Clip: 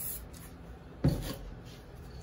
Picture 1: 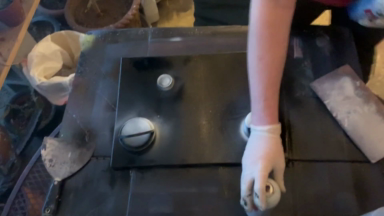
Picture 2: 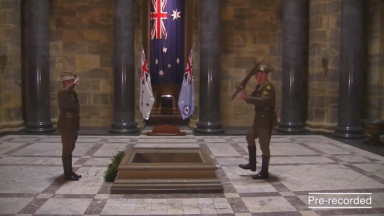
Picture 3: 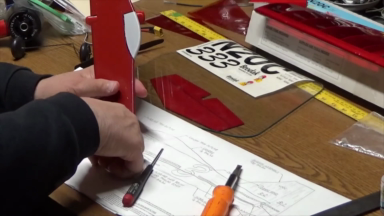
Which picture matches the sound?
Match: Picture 1